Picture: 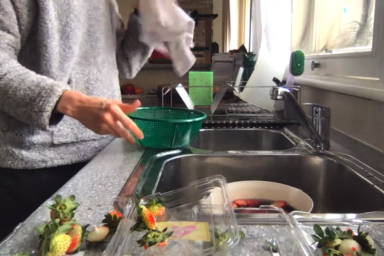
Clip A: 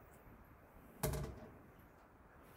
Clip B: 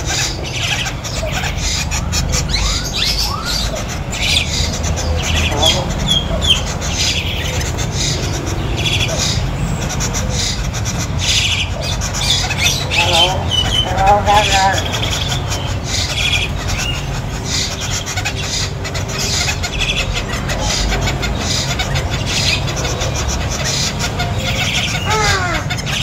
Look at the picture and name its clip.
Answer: A